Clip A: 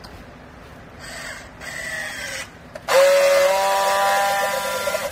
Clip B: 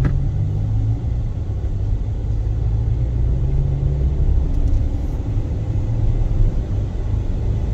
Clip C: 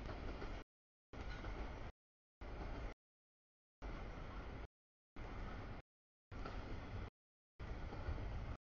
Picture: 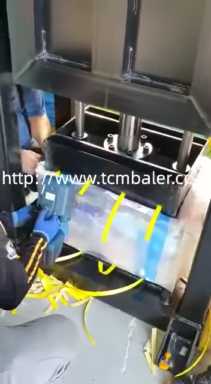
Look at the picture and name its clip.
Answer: A